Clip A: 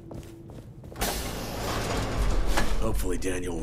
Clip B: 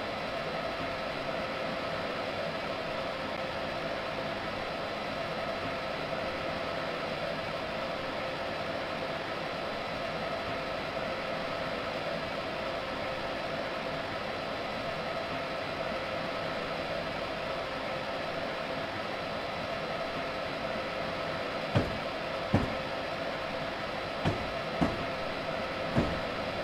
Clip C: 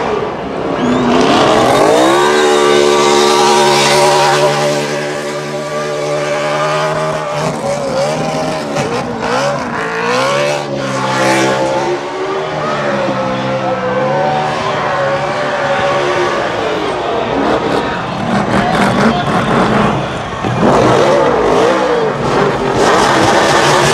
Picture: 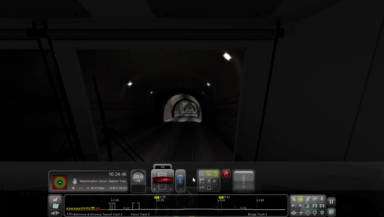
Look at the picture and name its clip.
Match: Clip B